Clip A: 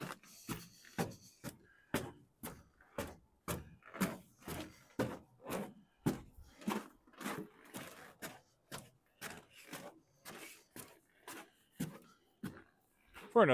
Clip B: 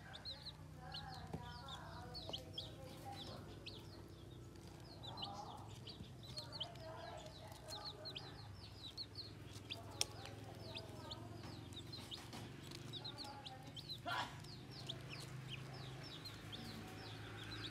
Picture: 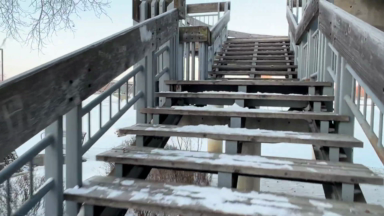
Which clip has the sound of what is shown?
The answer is A